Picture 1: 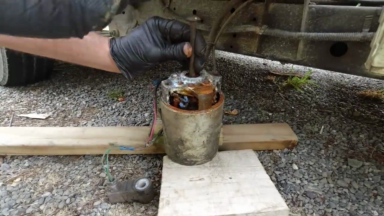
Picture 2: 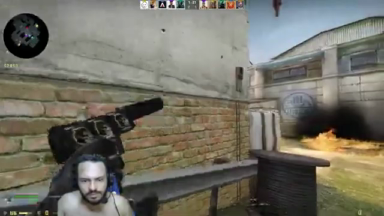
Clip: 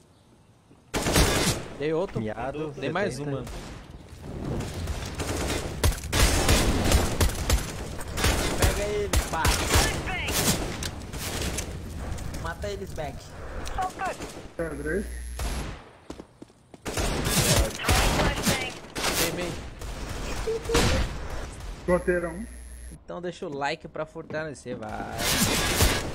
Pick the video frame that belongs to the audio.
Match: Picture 2